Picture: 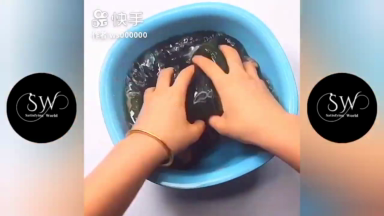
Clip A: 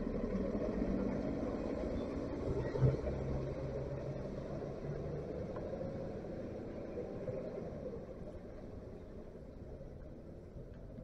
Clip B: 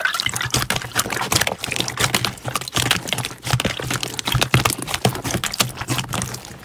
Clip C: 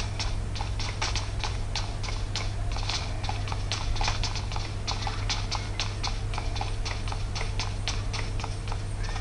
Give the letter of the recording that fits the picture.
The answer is B